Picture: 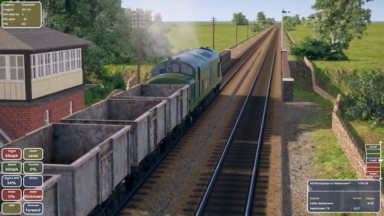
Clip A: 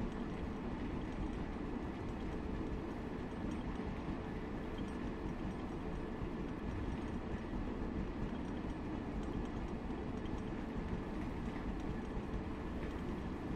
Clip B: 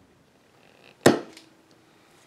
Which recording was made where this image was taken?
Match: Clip A